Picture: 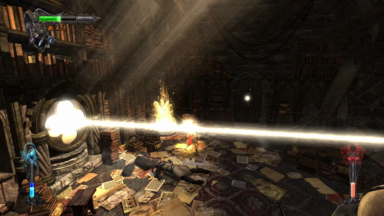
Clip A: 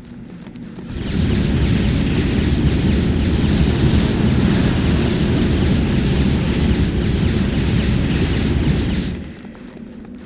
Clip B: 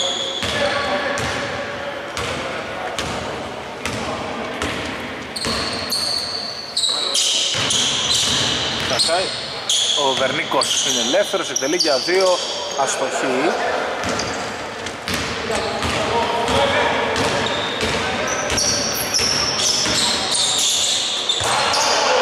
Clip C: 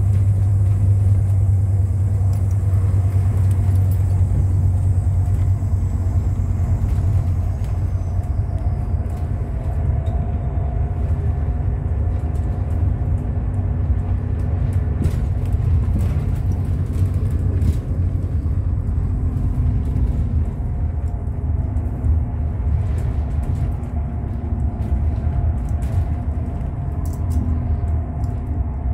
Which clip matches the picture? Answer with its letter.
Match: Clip A